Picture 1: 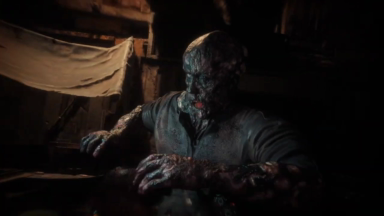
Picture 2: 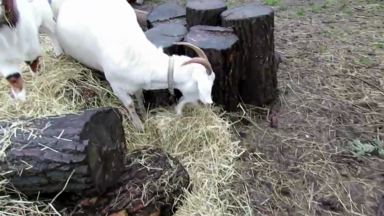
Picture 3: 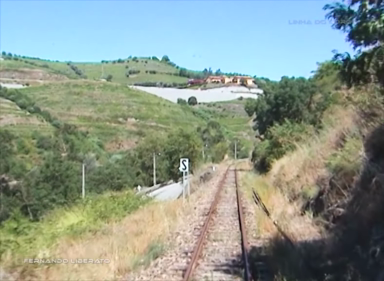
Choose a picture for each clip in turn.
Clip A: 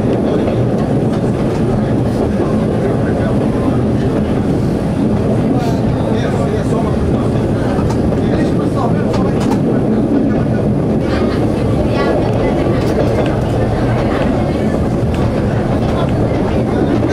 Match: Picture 3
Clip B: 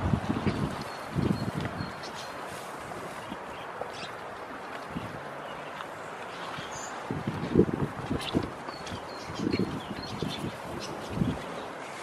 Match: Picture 2